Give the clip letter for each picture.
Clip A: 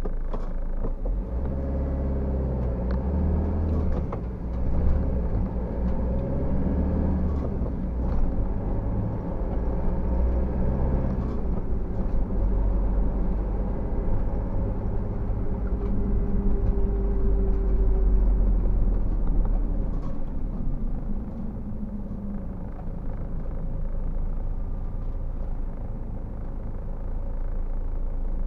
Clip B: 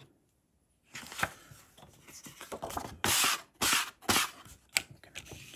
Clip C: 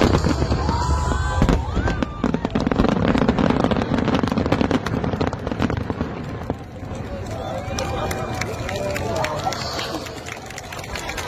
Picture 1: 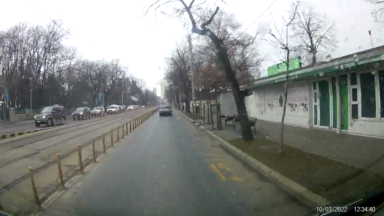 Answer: A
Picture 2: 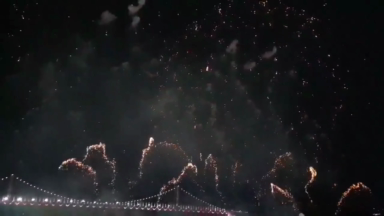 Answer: C